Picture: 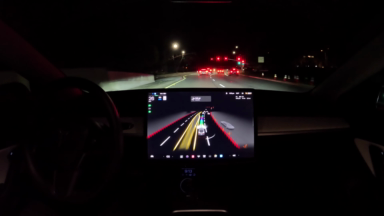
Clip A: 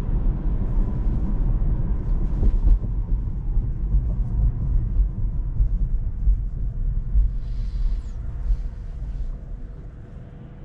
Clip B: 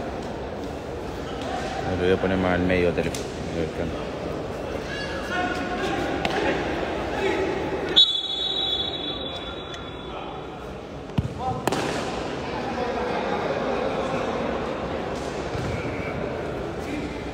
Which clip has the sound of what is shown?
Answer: A